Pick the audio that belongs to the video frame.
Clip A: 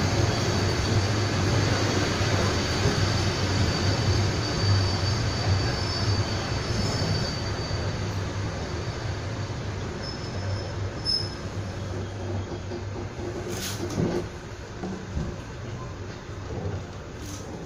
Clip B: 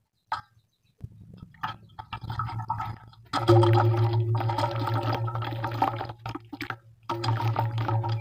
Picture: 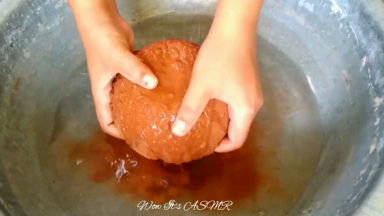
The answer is B